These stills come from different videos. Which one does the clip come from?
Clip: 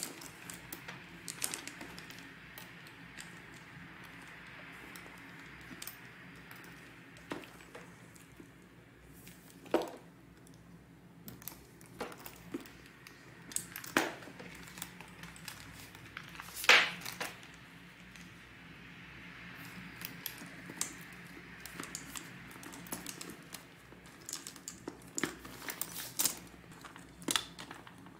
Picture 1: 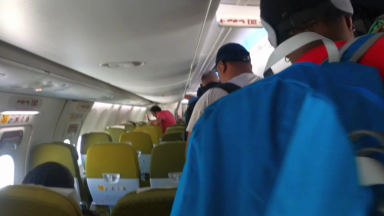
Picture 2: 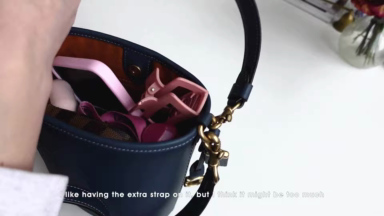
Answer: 2